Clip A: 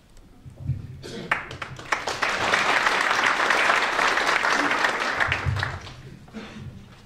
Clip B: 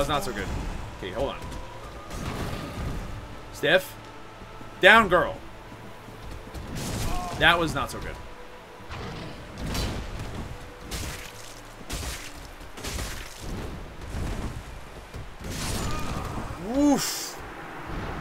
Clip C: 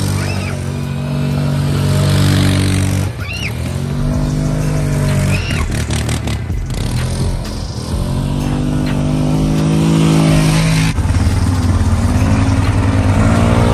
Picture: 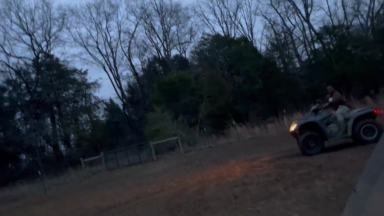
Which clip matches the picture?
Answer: C